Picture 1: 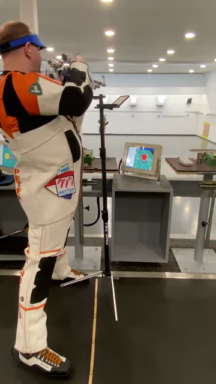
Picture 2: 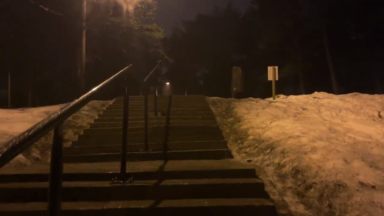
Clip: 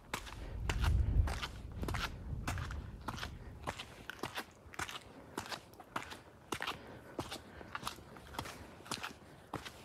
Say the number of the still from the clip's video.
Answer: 2